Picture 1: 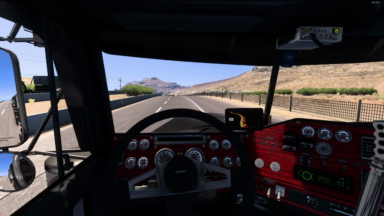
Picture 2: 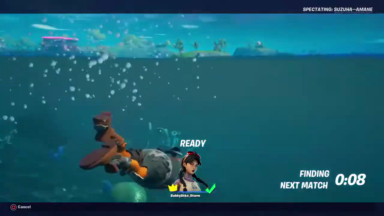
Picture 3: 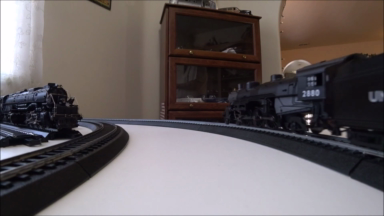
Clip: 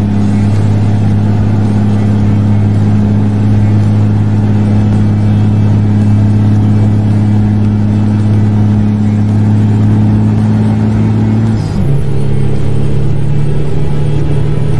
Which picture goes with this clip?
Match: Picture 1